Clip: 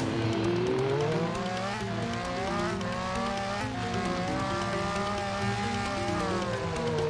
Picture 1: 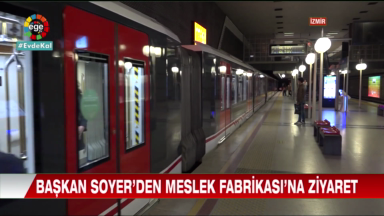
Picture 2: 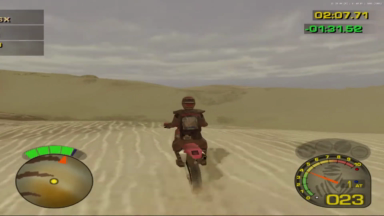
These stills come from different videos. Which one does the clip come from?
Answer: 2